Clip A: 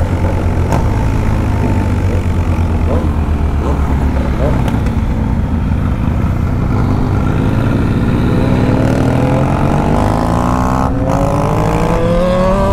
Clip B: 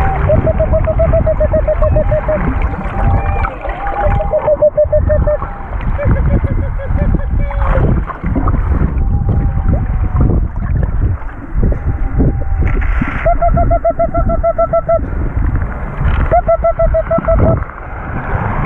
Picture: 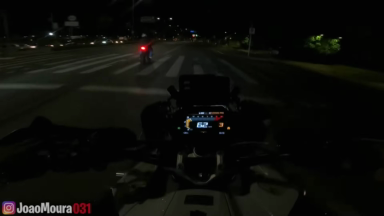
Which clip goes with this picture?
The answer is A